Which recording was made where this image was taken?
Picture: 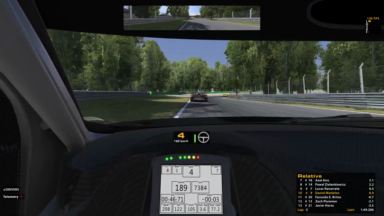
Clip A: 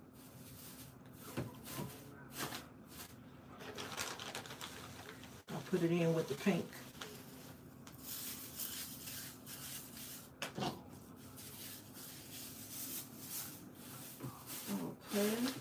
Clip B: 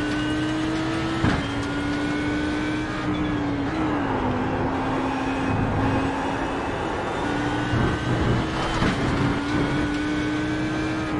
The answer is B